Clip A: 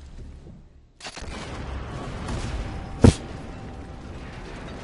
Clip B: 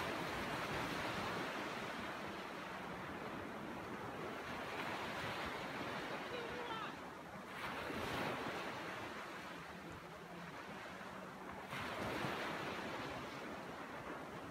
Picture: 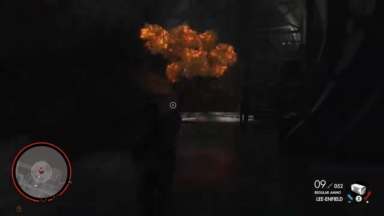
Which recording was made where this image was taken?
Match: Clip A